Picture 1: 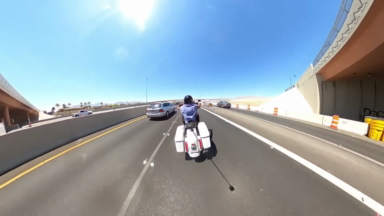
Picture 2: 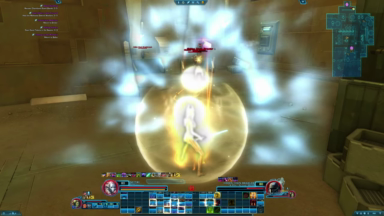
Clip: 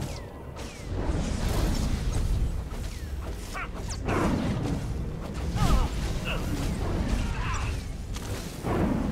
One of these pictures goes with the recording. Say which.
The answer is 2